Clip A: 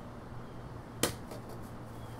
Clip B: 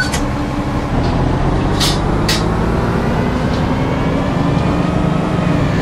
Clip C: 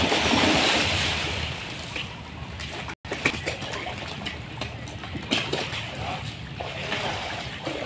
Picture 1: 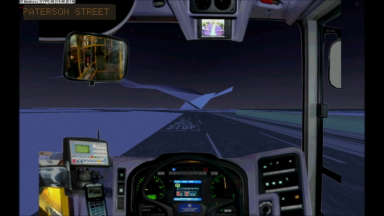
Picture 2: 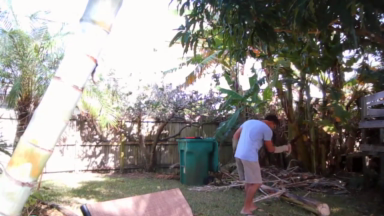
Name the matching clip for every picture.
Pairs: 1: B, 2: A